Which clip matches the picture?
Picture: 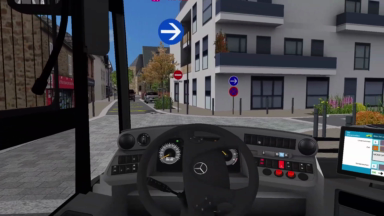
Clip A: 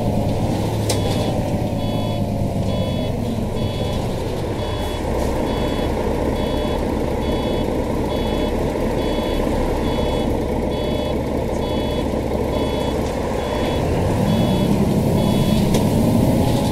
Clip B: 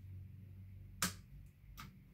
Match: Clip A